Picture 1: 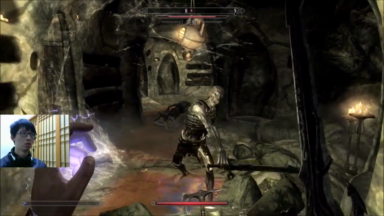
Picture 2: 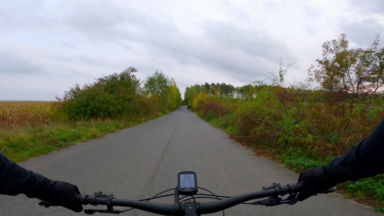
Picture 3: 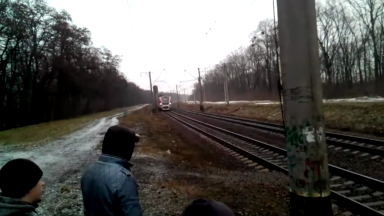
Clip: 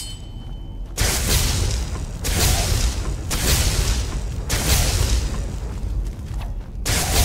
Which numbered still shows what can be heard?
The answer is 1